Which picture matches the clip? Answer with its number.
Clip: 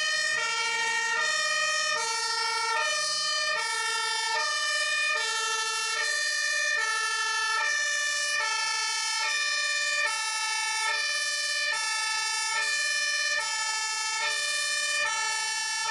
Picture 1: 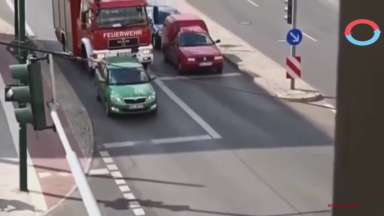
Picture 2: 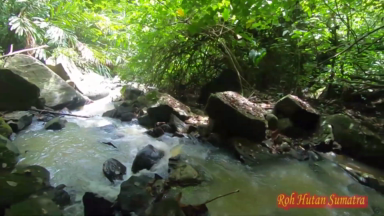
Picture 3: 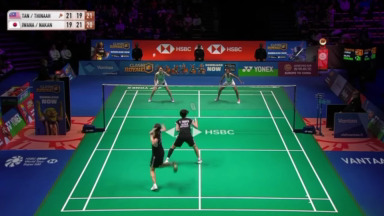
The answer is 1